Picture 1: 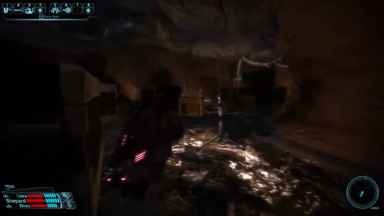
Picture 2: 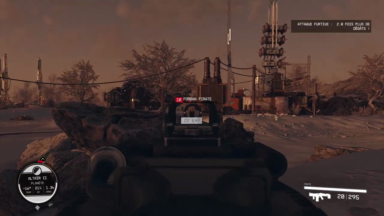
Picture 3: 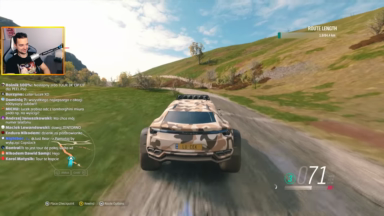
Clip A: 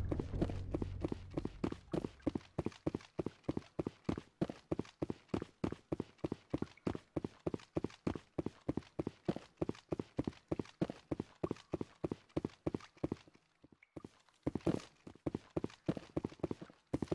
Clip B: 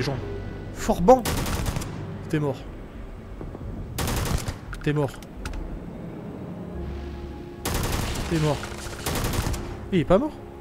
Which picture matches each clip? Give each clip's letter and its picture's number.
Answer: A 1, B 2